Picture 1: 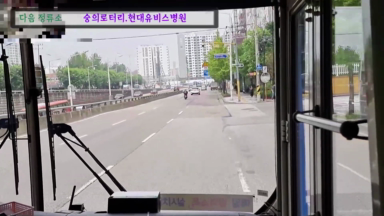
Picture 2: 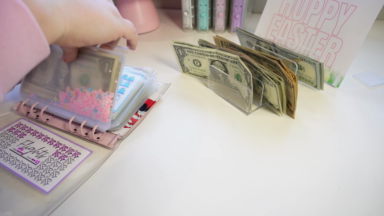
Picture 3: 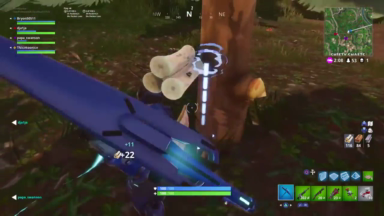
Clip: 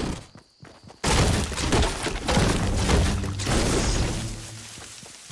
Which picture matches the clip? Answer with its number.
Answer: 3